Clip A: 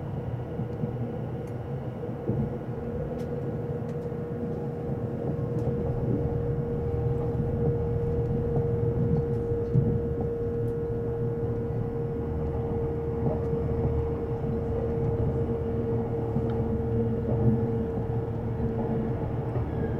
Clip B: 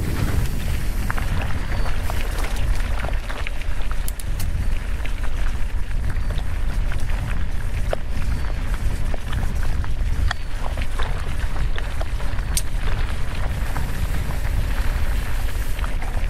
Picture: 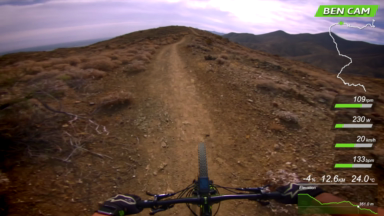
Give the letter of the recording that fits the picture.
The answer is B